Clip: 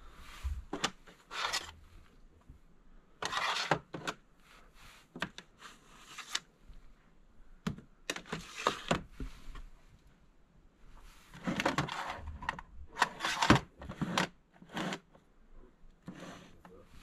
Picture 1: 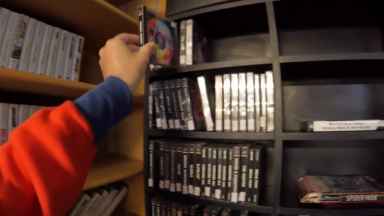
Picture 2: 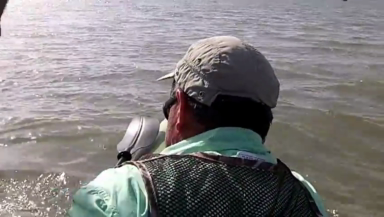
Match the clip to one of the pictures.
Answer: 1